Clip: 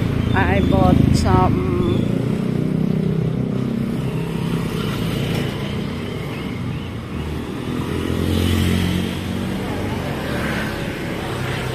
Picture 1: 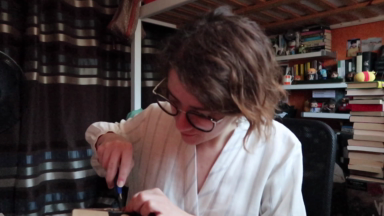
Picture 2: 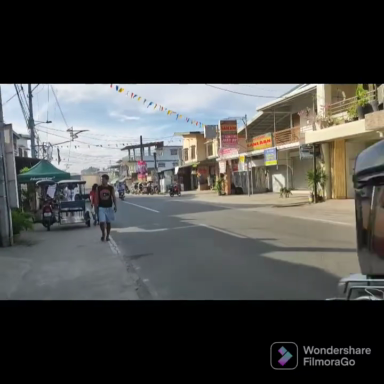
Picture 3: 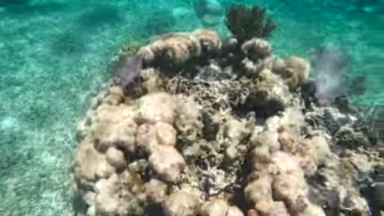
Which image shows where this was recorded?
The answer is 2